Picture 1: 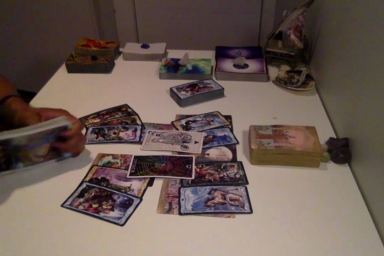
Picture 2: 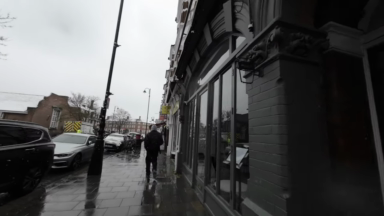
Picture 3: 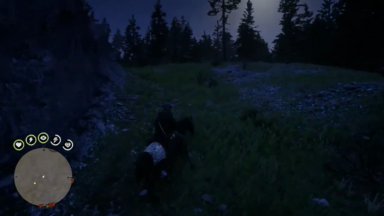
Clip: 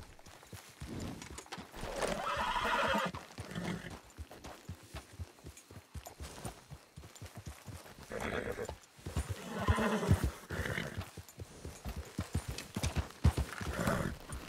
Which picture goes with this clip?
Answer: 3